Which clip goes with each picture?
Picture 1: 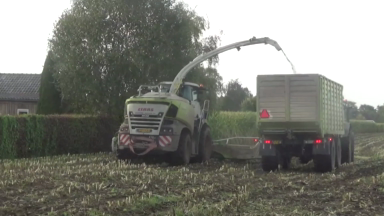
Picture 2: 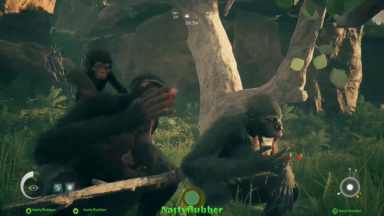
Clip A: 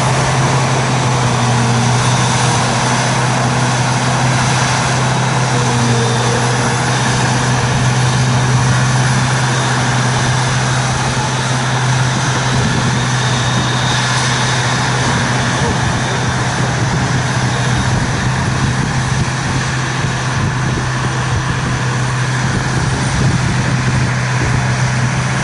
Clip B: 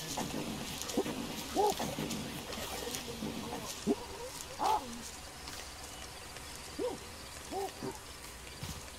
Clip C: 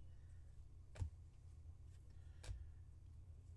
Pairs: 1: A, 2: B